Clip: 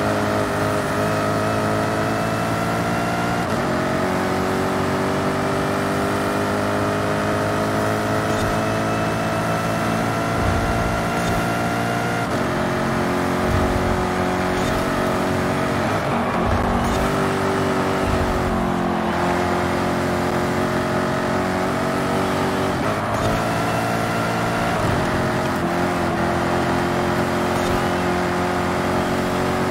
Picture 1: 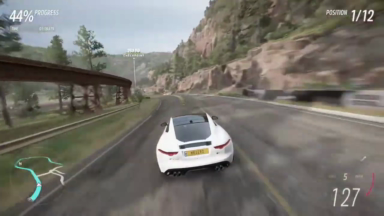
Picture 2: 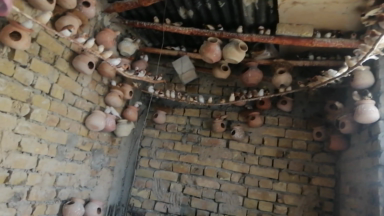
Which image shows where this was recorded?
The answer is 1